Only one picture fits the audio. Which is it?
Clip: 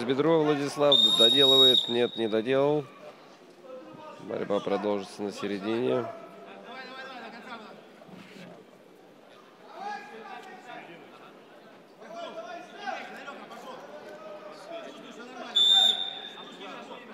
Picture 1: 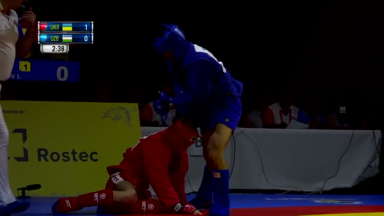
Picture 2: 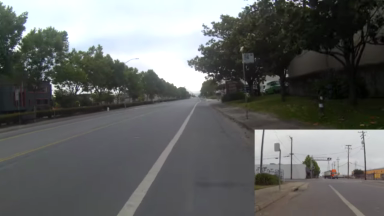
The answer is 1